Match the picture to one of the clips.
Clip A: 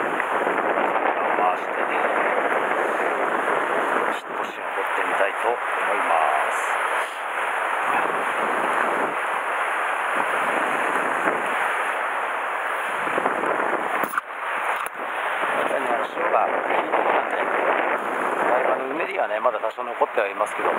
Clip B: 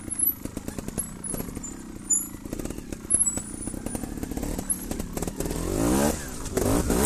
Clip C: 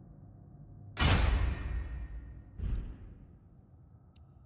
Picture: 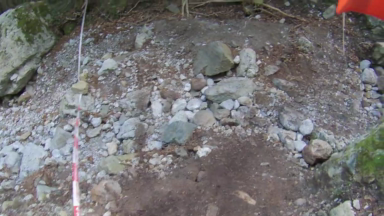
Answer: B